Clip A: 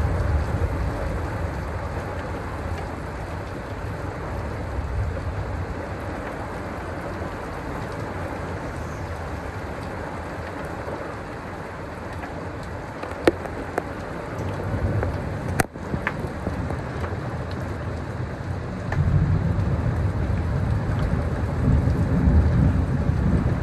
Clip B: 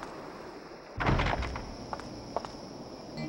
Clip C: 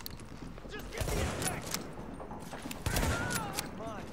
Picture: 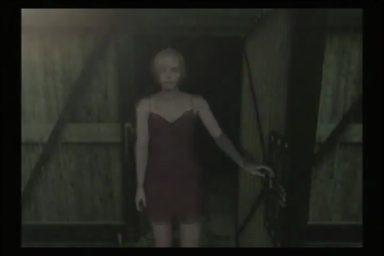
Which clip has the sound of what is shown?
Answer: B